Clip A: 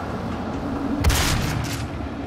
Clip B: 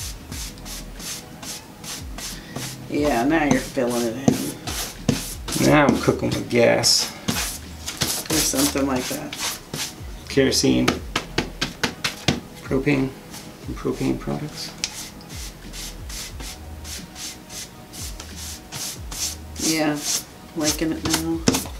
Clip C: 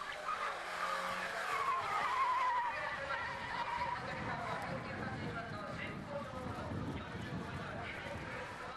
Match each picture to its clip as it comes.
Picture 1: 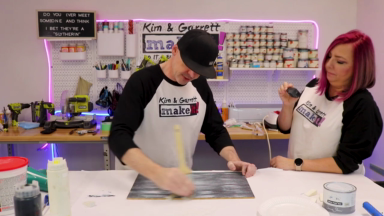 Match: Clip B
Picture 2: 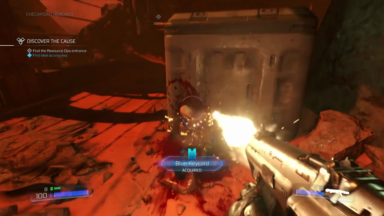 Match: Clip A